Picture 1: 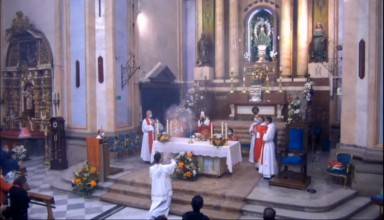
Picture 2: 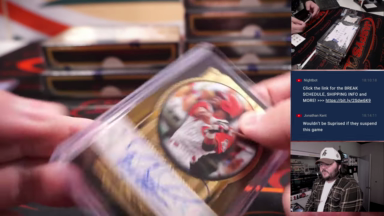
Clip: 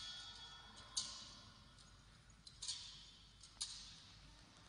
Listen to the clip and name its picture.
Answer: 1